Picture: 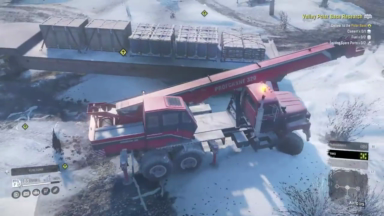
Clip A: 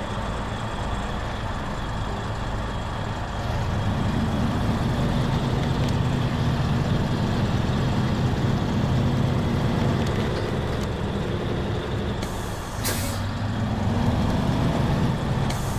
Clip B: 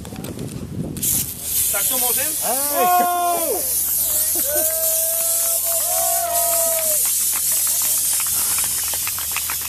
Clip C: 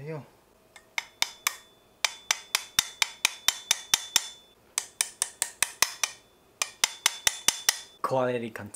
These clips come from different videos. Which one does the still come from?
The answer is A